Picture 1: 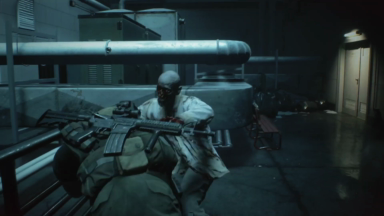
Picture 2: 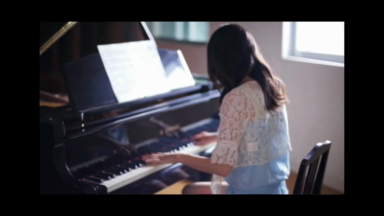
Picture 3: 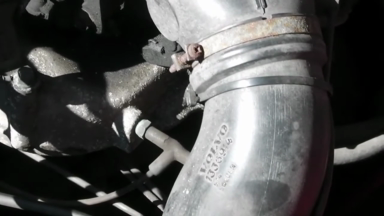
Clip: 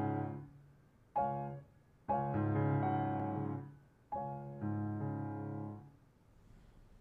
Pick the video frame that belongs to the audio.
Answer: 2